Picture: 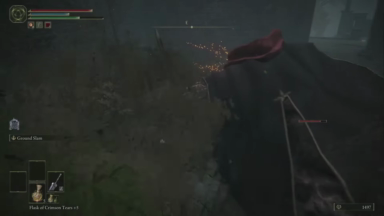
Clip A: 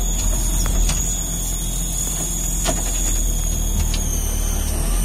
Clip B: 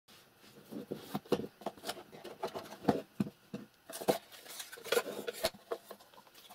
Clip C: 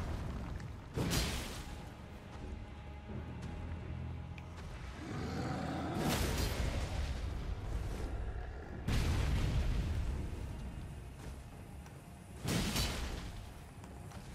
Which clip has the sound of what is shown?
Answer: C